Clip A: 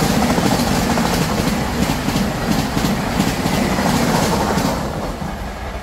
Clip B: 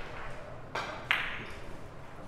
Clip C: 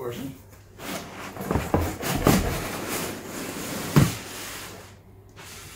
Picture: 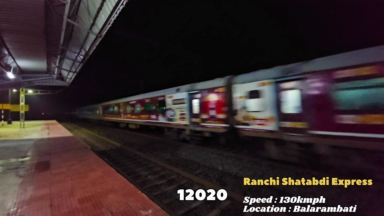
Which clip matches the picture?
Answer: A